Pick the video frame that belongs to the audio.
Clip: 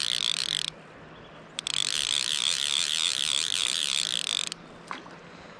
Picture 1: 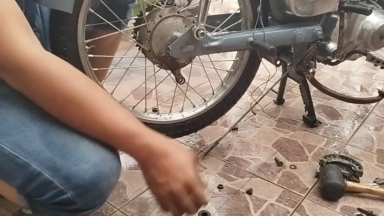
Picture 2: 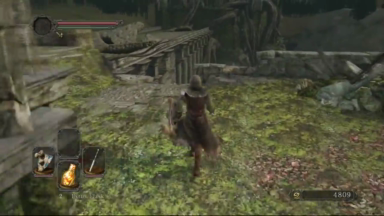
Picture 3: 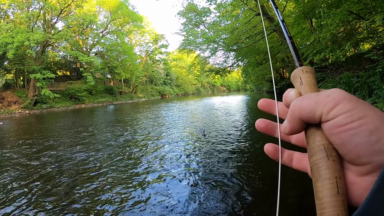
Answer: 3